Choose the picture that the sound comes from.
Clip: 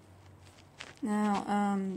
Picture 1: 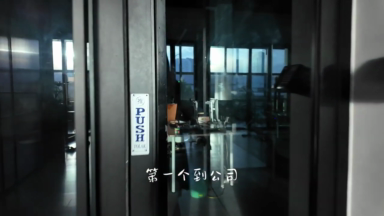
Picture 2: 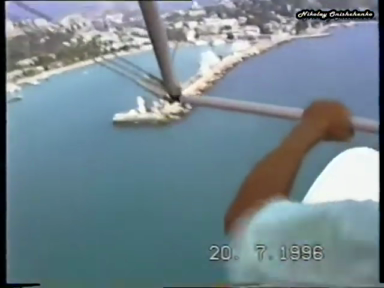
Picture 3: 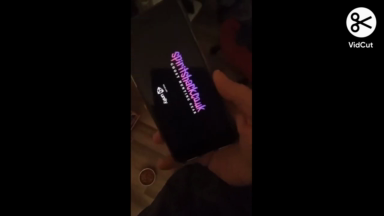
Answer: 3